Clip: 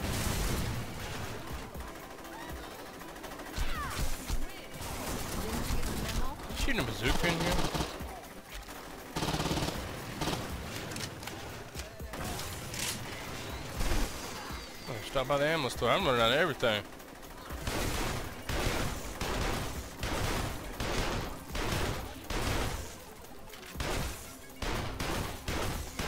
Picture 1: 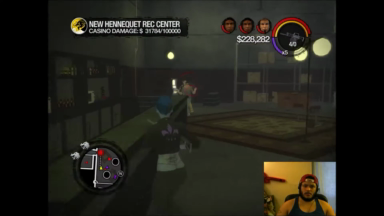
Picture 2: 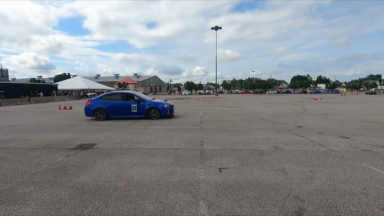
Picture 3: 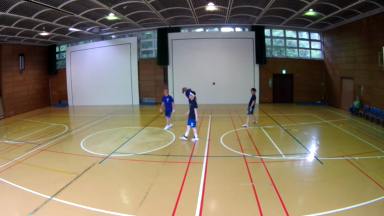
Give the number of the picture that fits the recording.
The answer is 1